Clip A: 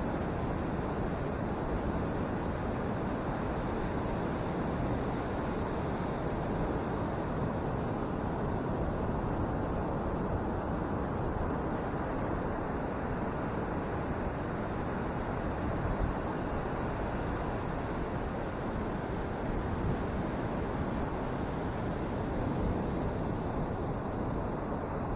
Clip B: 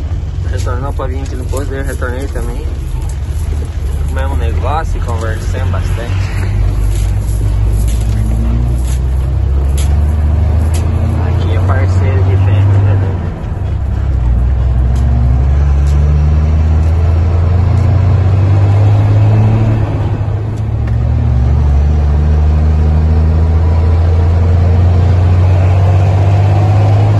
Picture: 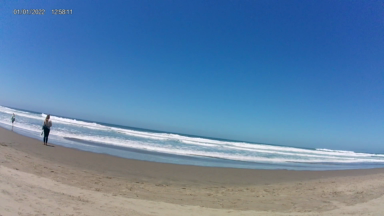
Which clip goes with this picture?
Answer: A